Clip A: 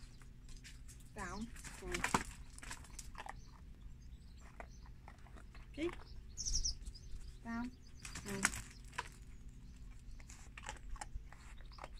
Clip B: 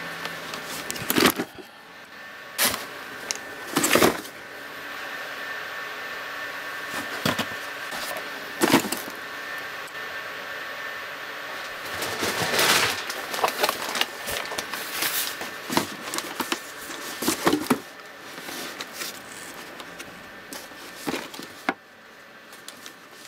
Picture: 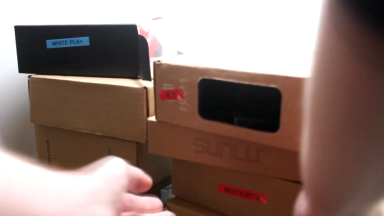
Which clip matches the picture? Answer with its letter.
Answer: B